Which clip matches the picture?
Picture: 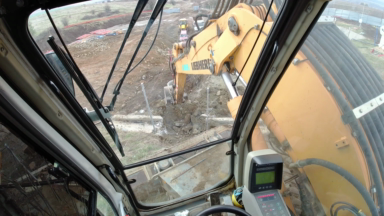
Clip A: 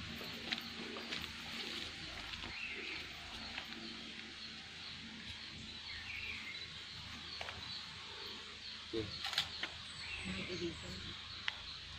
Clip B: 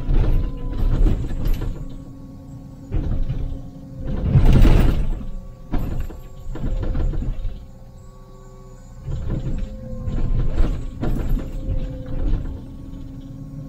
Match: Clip B